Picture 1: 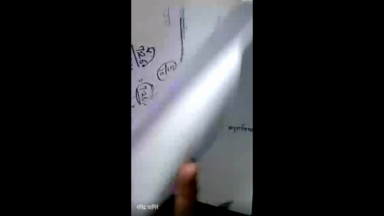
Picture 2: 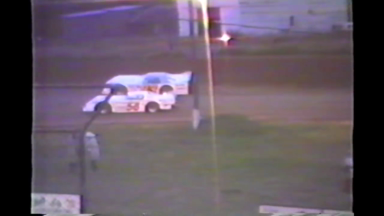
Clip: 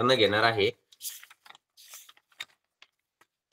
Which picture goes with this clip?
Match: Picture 1